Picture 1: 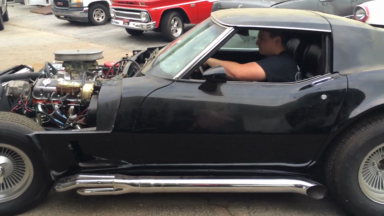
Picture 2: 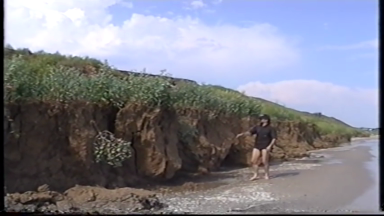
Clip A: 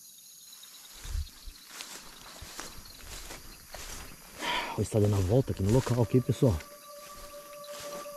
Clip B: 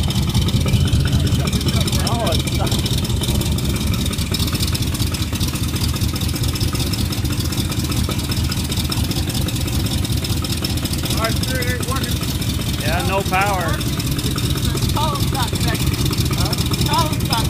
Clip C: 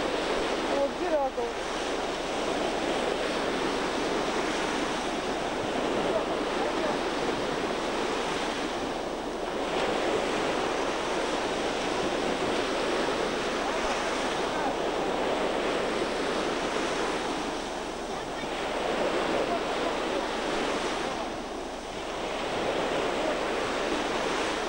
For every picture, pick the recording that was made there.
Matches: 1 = B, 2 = C